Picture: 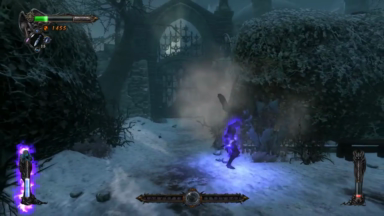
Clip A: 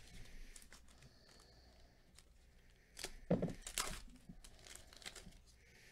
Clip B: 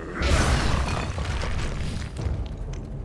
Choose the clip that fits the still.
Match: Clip B